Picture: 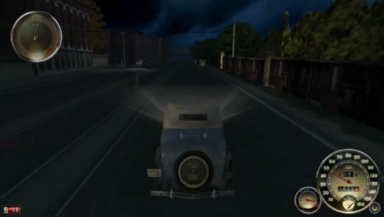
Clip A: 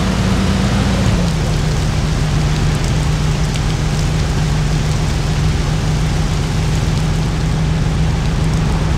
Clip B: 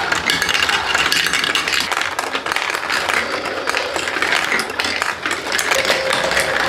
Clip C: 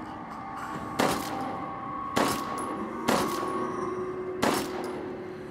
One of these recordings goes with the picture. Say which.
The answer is A